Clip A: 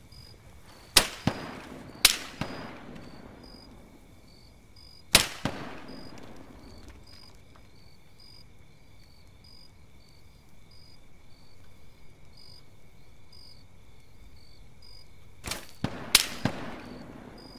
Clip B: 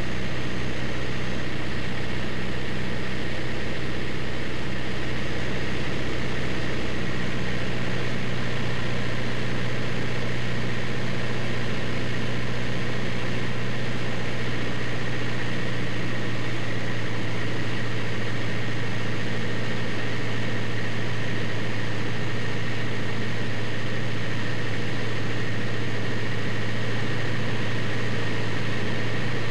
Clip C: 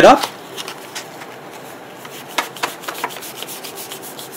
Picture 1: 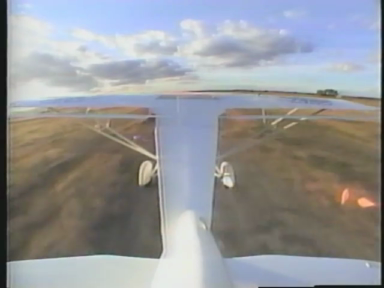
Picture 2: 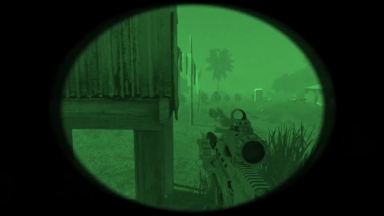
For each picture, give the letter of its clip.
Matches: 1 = B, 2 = A